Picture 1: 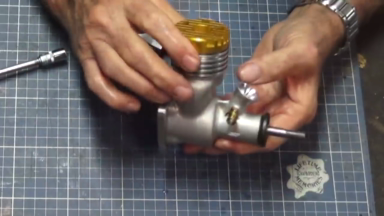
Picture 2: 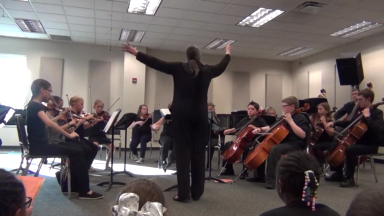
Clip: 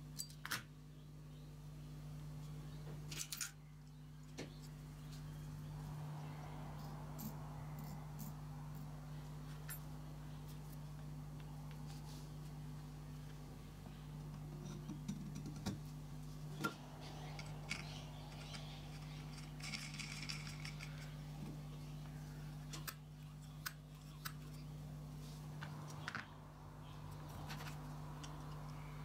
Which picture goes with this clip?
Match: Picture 1